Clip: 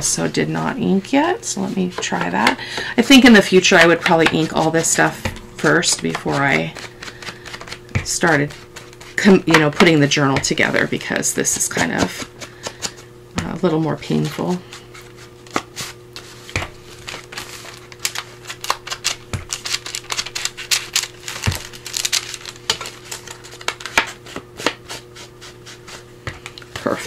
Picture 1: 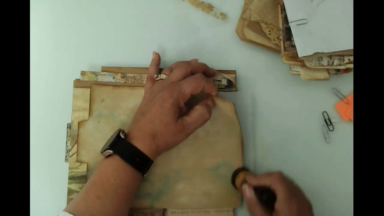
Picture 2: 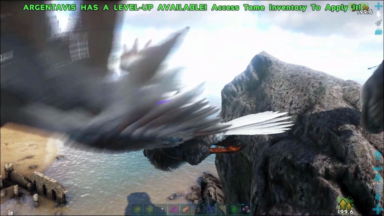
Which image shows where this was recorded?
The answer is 1